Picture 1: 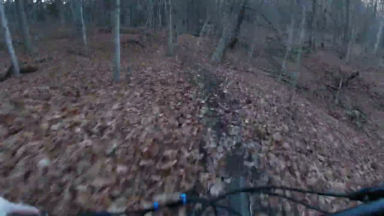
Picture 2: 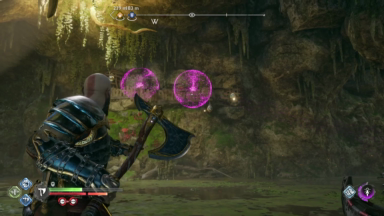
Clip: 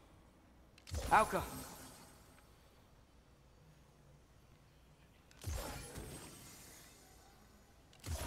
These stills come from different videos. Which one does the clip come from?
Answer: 2